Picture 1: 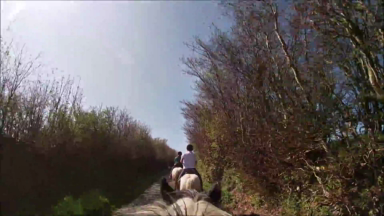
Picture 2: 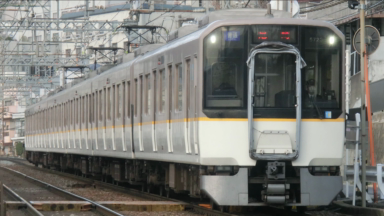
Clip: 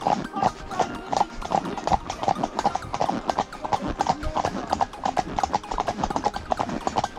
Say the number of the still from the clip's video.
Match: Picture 1